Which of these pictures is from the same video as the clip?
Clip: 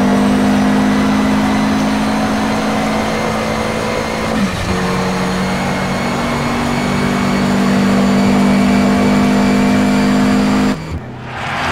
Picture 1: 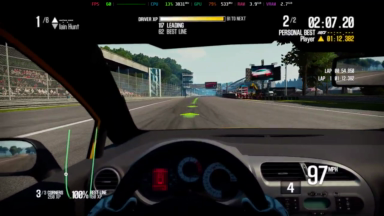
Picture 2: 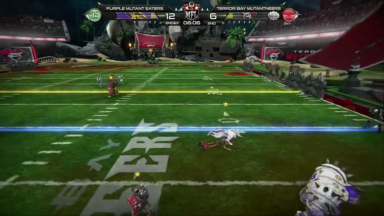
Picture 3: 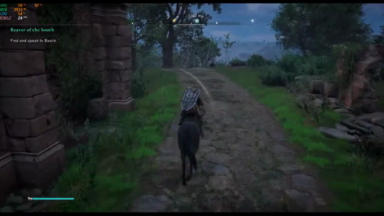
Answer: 1